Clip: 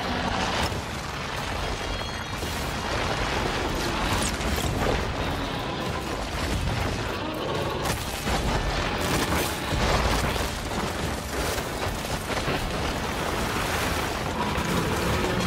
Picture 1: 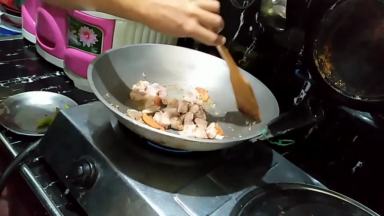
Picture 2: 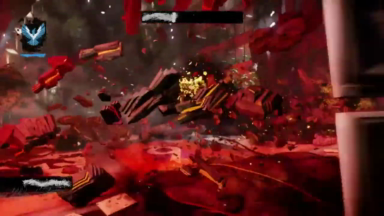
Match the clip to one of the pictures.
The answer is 2